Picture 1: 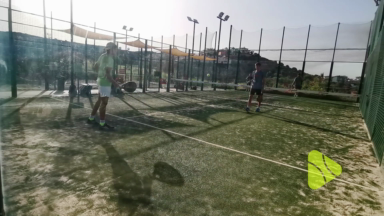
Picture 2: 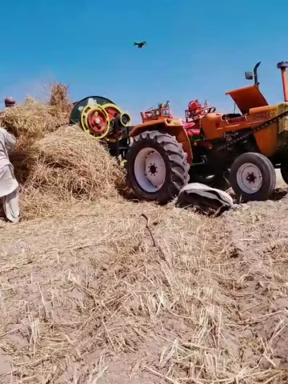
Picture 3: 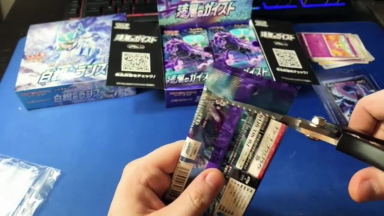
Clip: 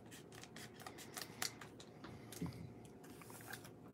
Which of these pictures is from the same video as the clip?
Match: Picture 3